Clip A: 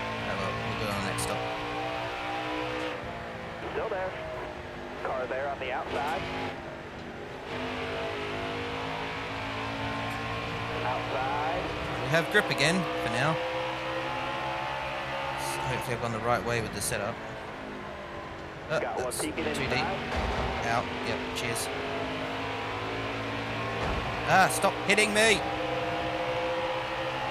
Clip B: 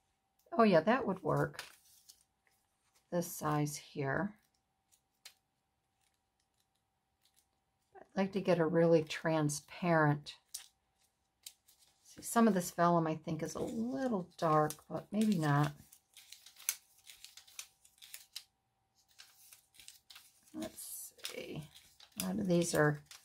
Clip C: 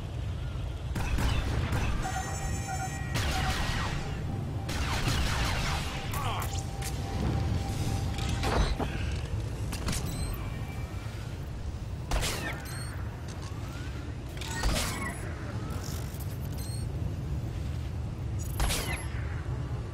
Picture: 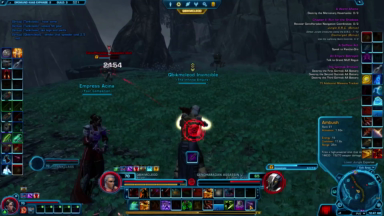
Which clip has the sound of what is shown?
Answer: C